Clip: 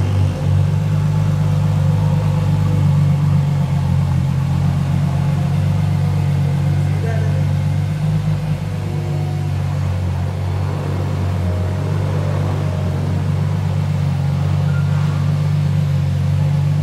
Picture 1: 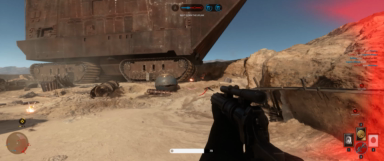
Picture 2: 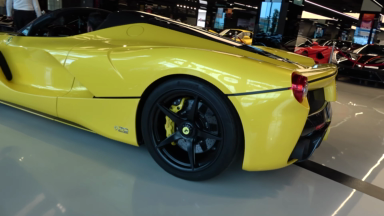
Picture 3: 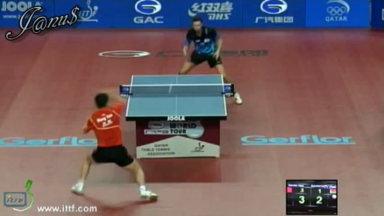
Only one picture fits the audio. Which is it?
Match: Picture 2